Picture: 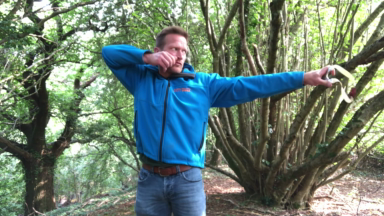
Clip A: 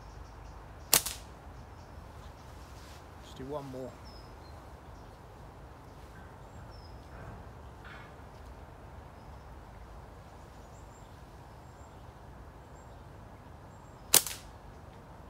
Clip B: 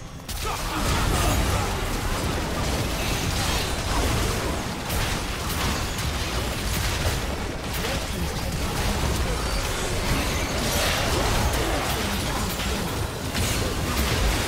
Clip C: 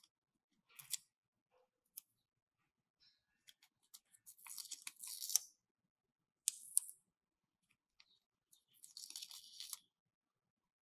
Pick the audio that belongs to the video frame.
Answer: A